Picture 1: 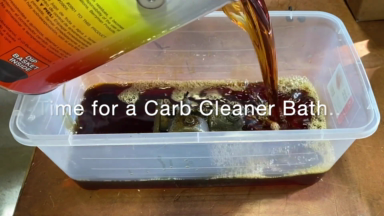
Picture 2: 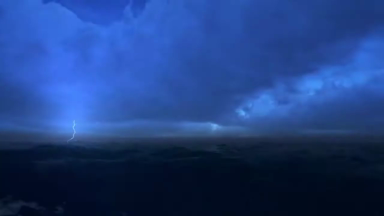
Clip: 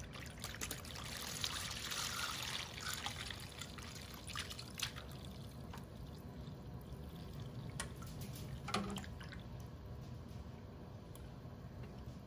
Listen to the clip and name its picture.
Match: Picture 1